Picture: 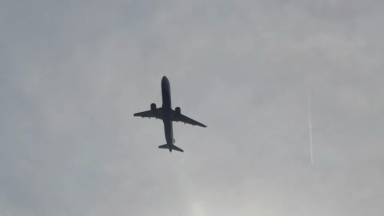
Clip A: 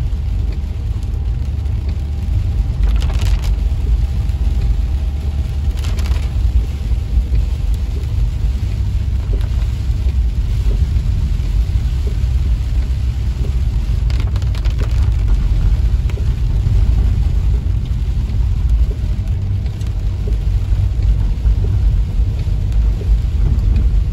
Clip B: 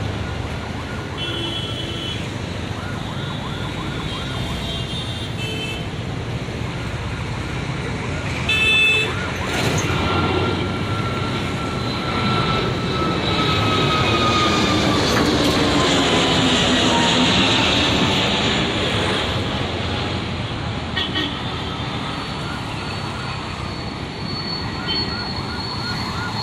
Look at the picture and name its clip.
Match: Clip B